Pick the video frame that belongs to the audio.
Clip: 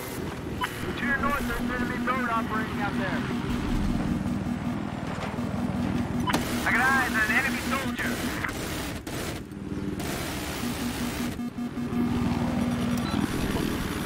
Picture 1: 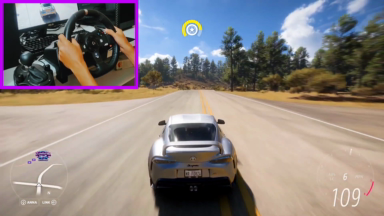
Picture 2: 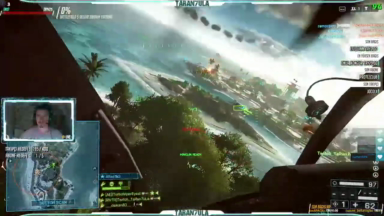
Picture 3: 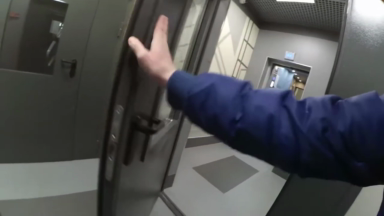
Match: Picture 2